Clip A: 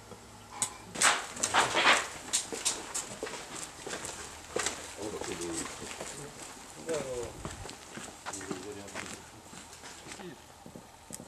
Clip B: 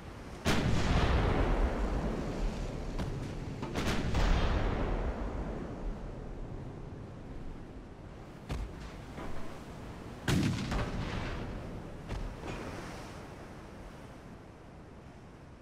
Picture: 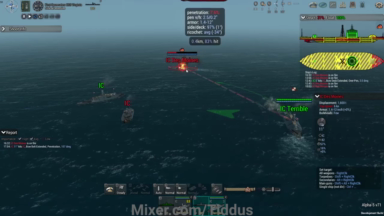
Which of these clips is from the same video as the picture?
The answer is B